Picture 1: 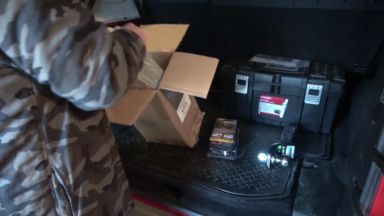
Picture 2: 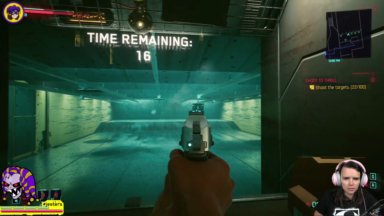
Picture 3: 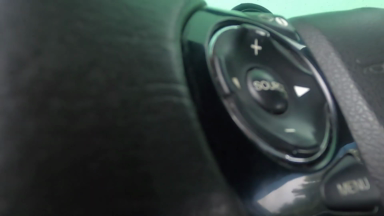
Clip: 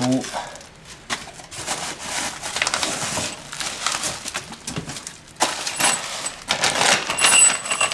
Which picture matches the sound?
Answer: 1